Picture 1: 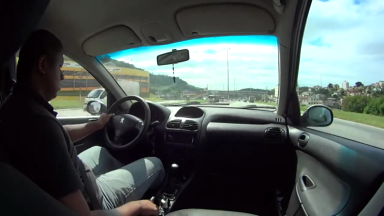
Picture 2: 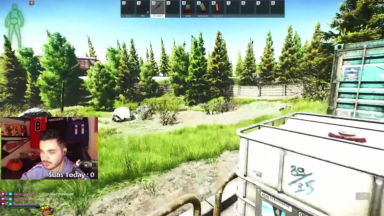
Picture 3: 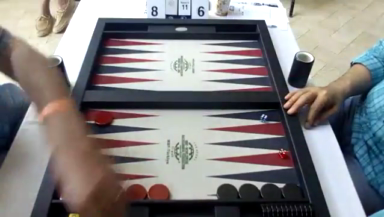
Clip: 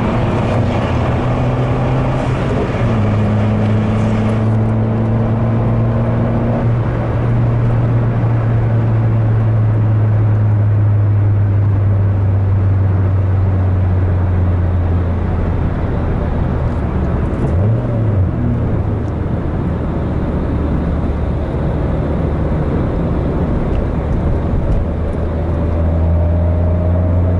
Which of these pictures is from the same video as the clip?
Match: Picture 1